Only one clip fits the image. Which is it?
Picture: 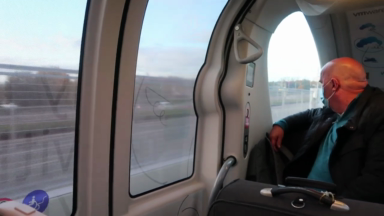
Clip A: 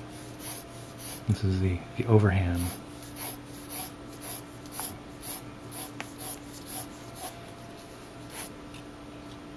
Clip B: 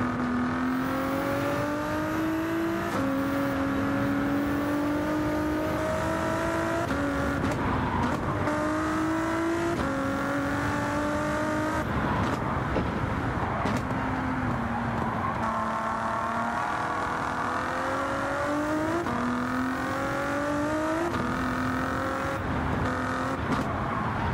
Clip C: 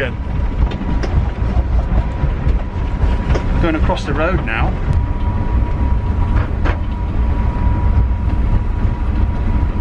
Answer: C